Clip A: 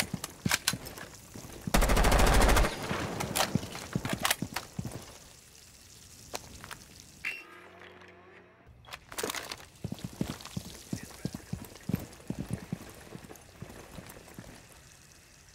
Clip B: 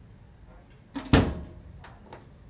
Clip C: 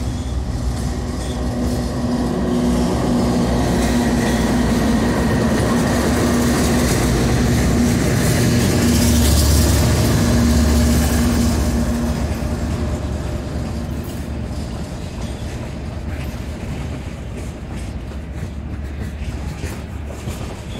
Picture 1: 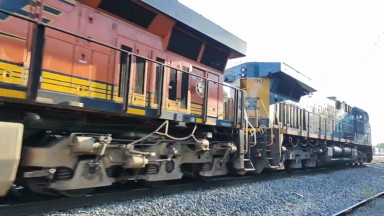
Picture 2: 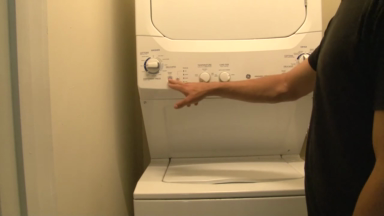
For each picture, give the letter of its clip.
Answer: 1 C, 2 B